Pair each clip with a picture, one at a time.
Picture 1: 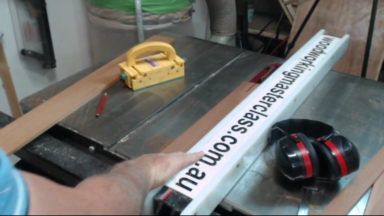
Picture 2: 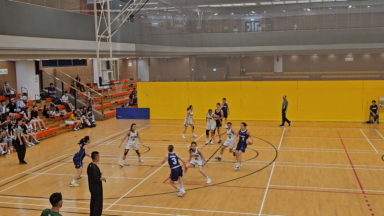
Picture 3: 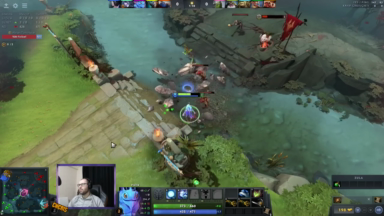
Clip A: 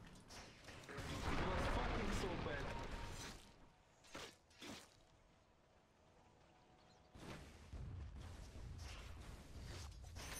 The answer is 3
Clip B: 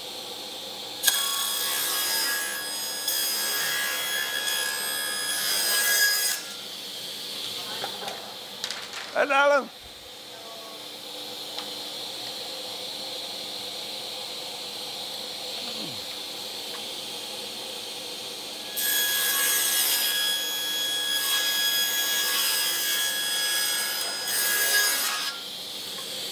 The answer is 1